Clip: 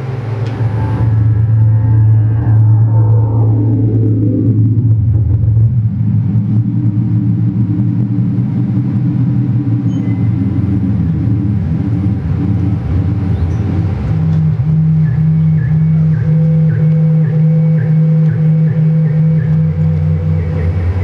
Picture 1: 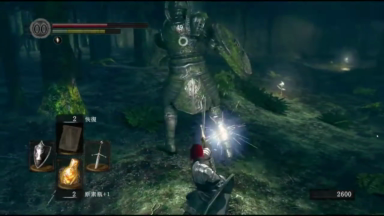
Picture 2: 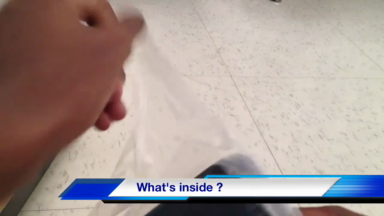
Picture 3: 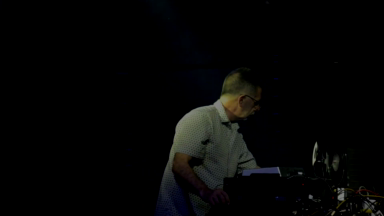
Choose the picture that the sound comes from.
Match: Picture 3